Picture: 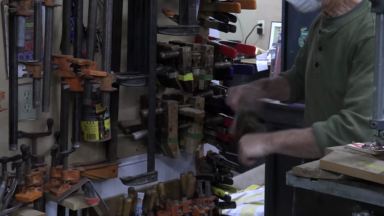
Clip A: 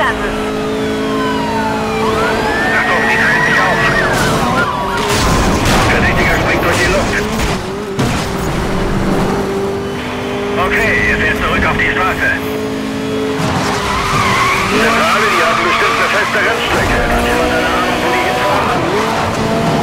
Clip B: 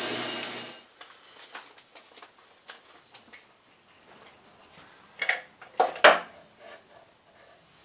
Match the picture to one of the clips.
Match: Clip B